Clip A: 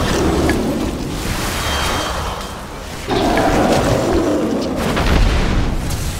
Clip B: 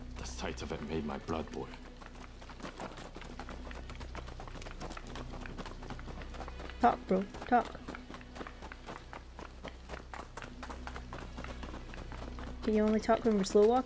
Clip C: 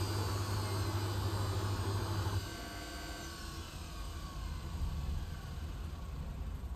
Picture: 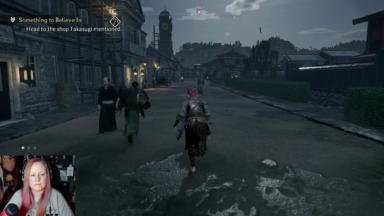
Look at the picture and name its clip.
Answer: B